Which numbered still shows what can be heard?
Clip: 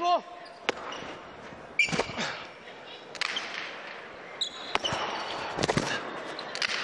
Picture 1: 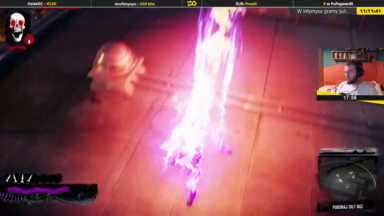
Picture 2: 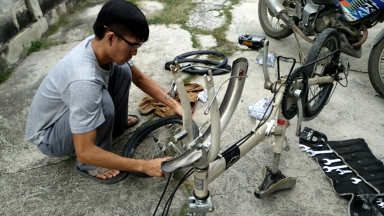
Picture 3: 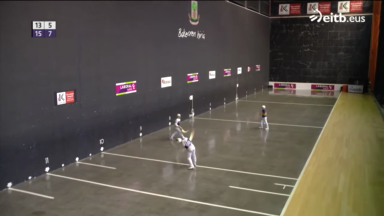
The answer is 3